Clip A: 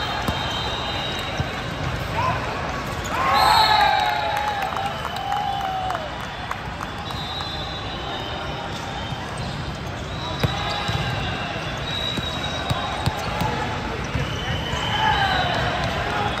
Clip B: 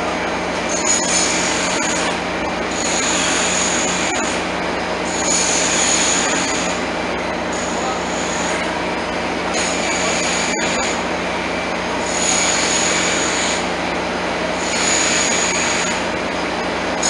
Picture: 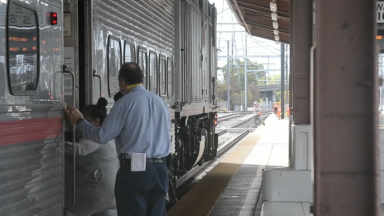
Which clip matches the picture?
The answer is B